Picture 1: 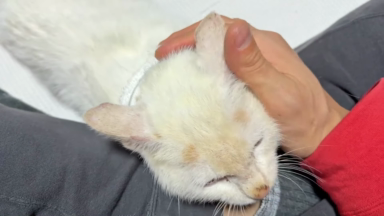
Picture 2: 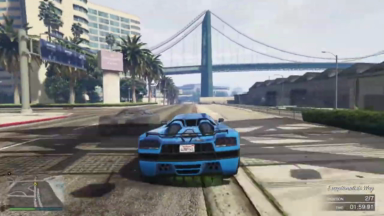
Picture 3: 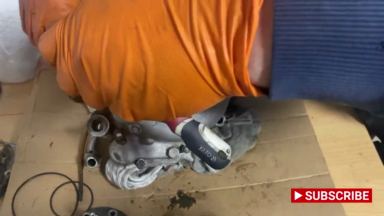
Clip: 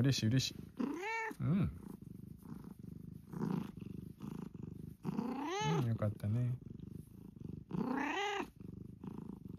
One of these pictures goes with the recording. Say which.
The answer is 1